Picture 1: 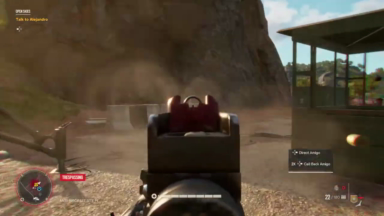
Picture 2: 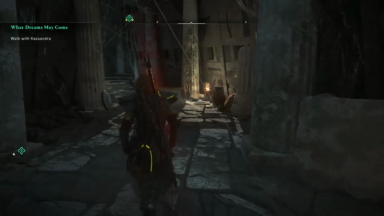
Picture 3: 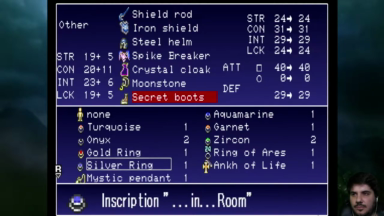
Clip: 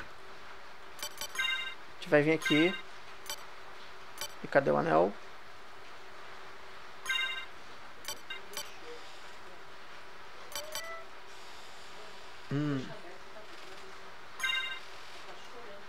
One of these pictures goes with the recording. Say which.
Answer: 3